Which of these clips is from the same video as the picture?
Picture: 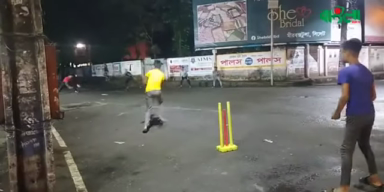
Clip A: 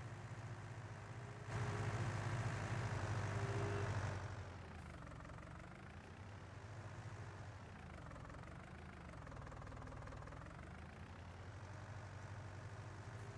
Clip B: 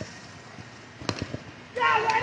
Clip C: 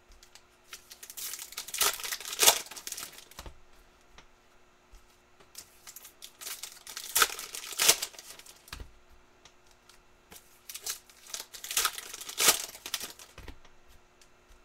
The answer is B